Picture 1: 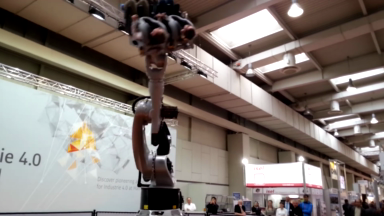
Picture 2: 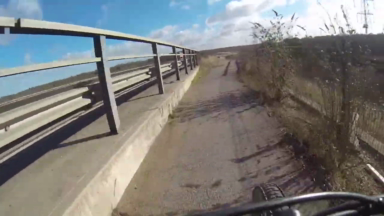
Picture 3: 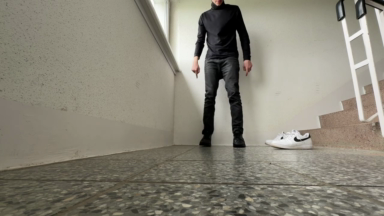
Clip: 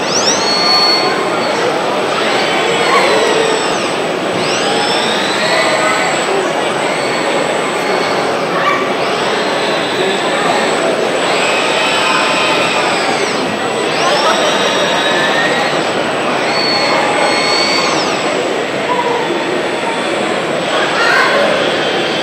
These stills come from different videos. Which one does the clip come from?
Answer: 1